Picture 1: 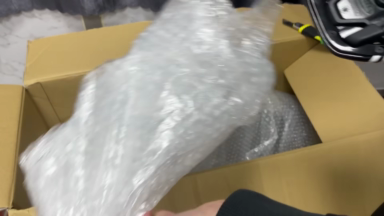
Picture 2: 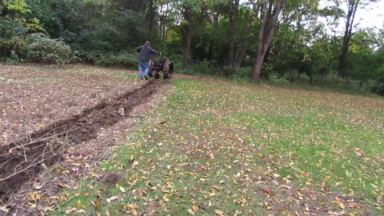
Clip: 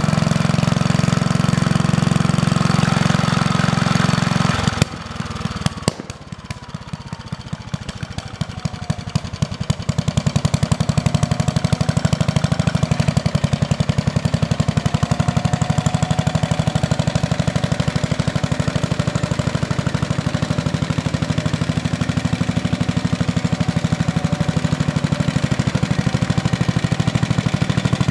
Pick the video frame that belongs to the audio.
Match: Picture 2